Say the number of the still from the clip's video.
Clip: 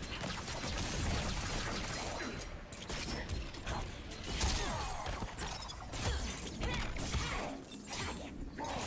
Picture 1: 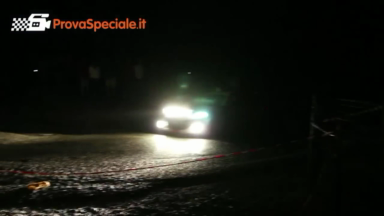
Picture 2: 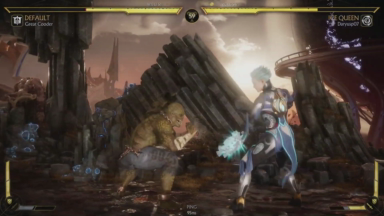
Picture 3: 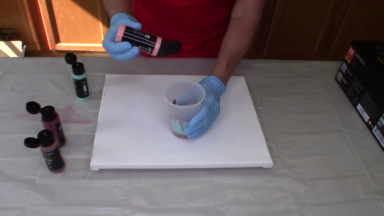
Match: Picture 2